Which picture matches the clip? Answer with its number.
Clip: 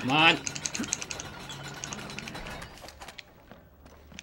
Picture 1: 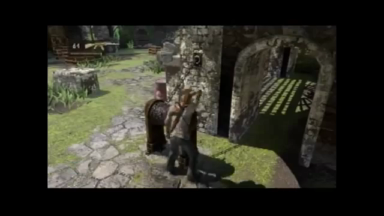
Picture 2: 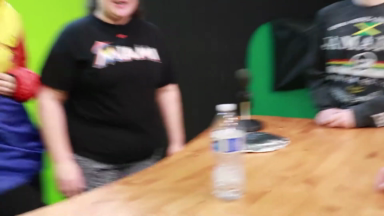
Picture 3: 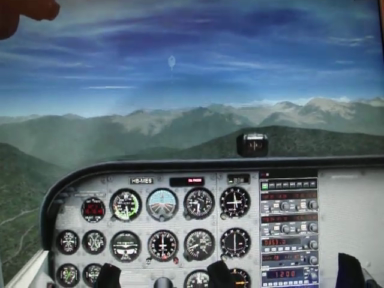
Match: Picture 1